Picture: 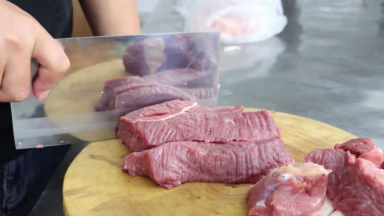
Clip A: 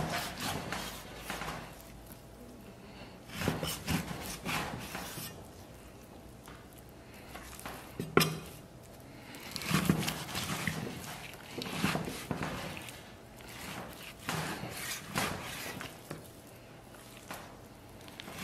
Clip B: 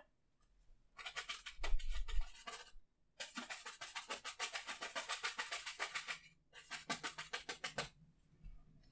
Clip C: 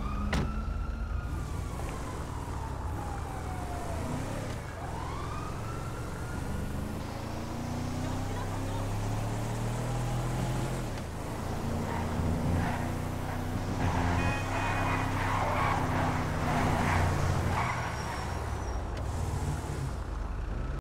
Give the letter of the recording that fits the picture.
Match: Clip A